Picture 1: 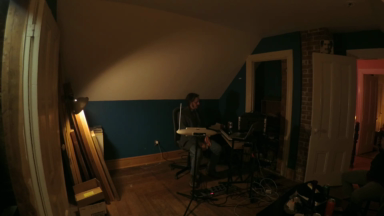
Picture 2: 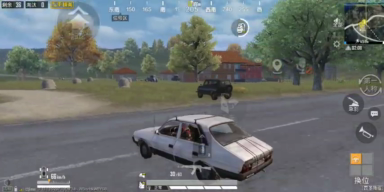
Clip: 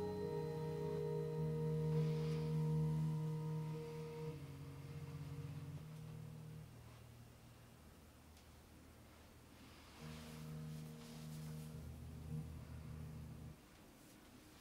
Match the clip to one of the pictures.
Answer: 1